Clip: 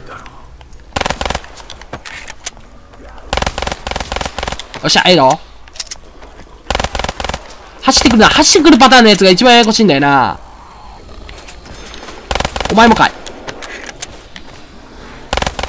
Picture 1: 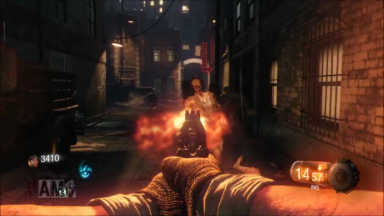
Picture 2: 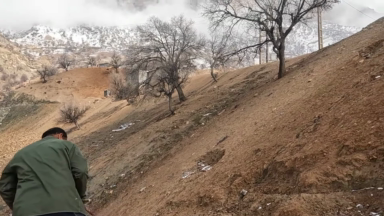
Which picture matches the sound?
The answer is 1